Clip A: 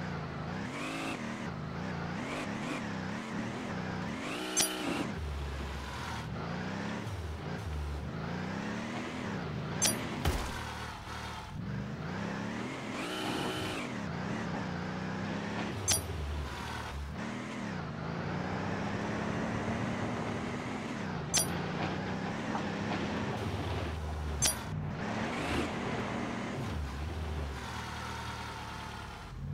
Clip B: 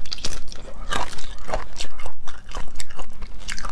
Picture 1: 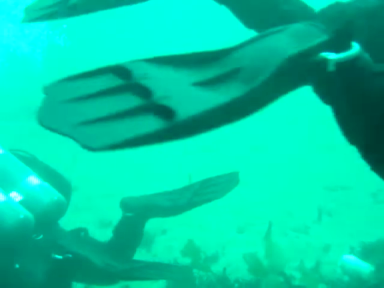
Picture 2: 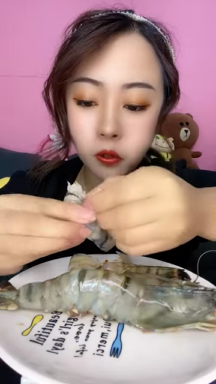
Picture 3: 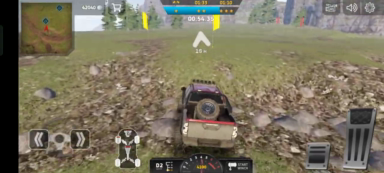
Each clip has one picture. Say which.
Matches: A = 3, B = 2